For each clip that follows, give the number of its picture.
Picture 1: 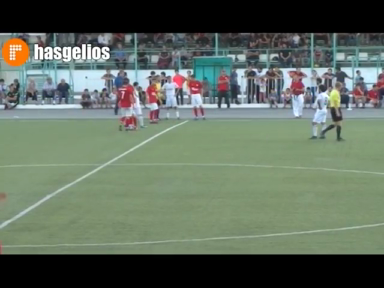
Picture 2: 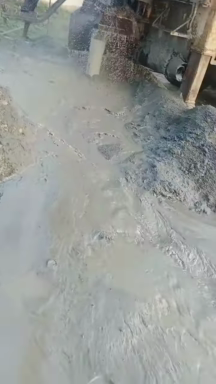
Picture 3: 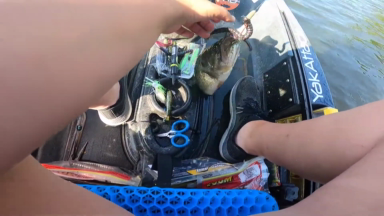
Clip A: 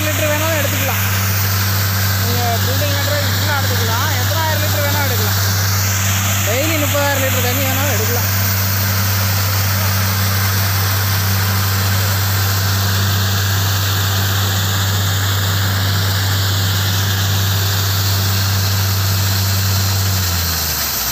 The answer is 2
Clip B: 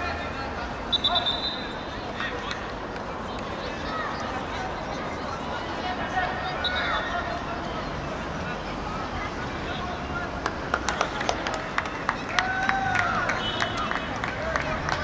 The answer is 1